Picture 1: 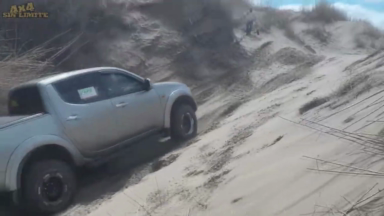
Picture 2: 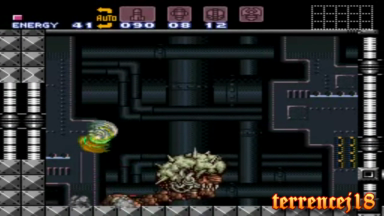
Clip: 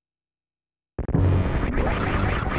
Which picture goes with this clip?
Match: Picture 2